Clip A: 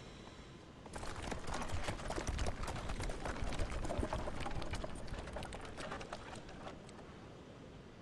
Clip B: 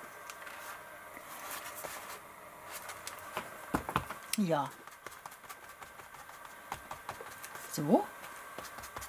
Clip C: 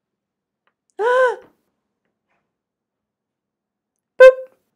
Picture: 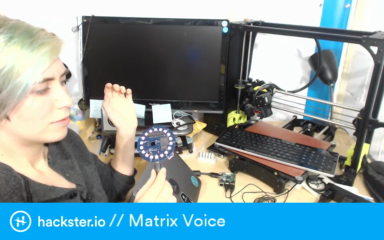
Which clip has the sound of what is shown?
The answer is C